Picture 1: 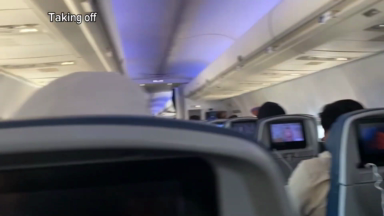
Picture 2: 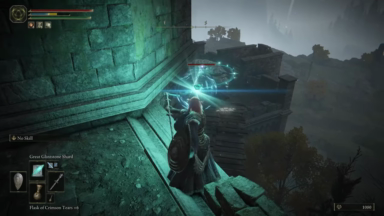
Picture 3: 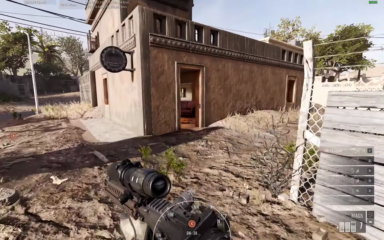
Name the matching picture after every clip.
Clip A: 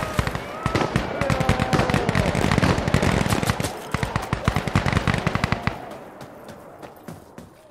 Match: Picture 3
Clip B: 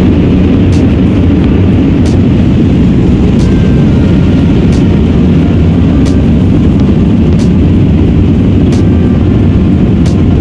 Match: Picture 1